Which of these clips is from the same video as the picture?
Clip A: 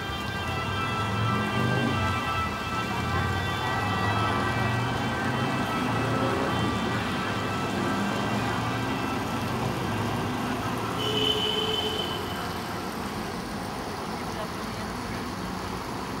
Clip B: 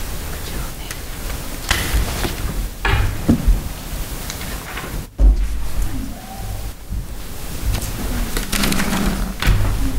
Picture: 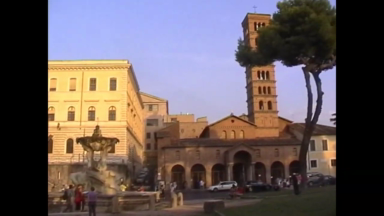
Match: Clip A